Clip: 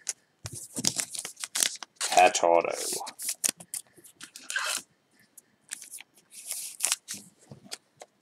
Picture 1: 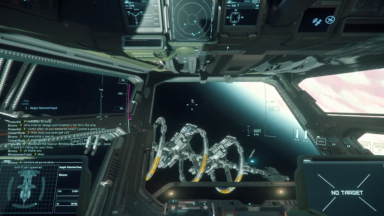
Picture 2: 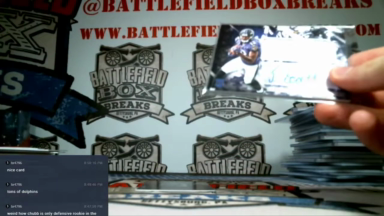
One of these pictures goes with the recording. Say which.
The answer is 2